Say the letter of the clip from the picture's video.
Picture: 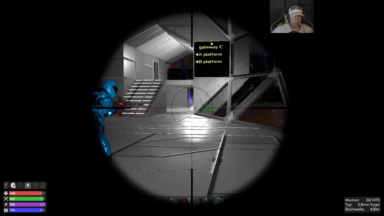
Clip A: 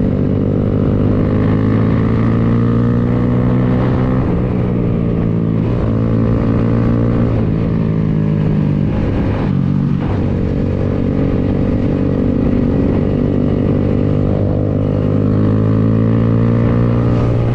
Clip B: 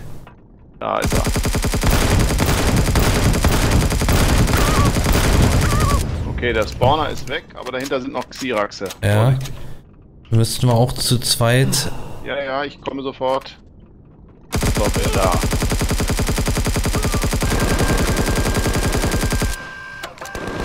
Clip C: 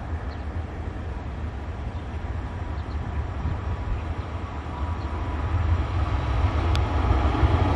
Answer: B